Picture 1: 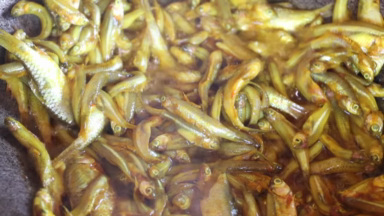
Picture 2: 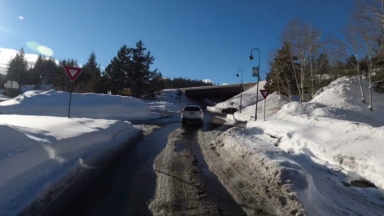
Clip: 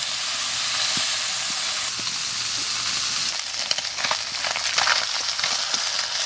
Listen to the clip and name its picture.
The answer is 1